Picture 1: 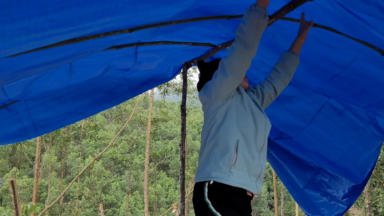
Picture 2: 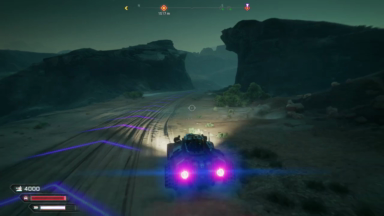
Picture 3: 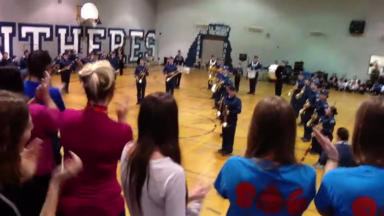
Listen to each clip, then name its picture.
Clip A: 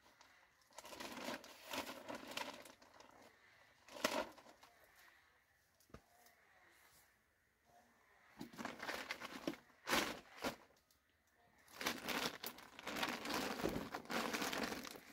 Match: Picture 1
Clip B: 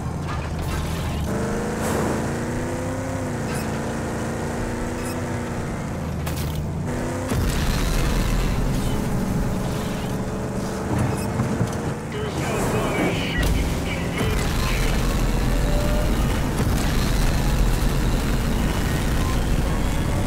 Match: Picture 2